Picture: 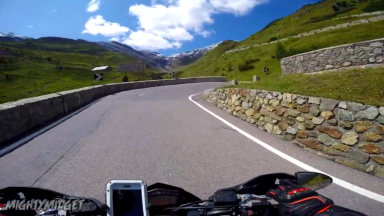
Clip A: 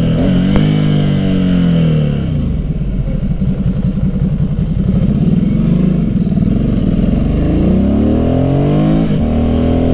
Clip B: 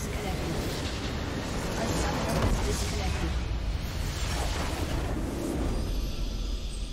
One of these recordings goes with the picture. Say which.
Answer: A